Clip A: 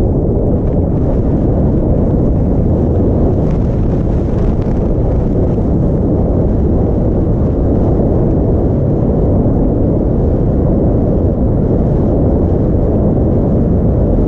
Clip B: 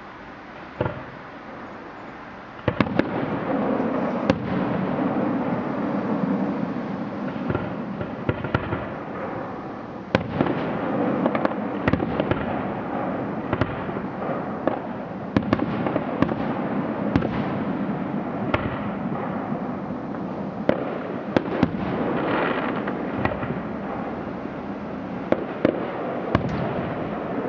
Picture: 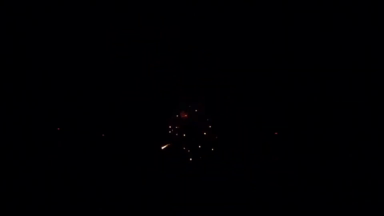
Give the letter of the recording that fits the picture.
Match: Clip B